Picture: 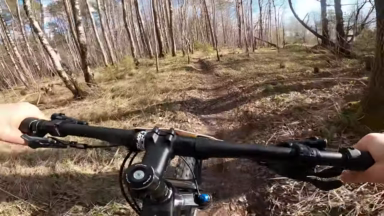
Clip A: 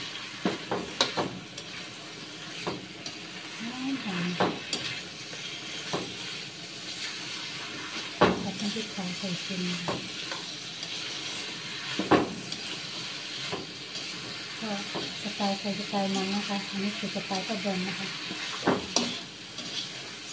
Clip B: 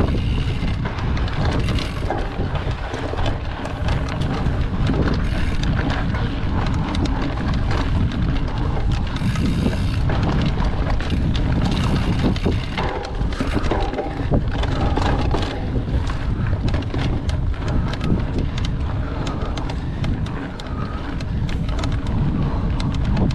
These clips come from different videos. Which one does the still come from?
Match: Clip B